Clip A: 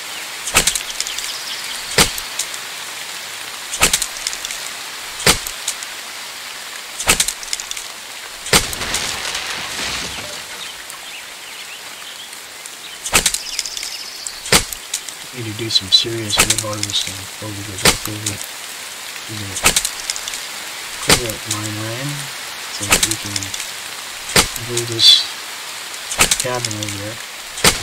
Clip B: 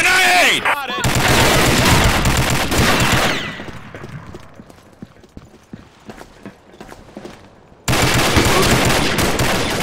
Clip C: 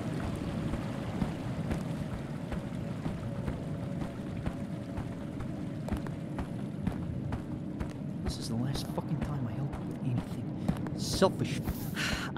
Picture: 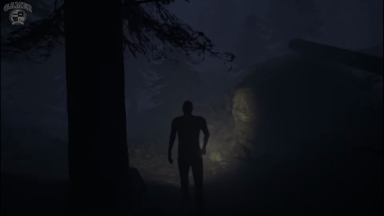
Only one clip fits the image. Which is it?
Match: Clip C